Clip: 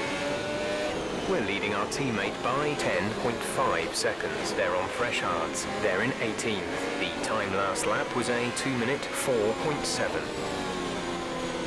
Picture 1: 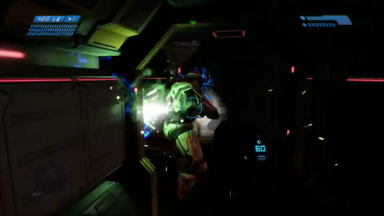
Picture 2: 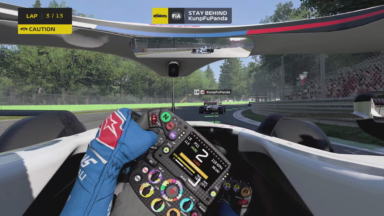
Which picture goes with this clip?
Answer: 2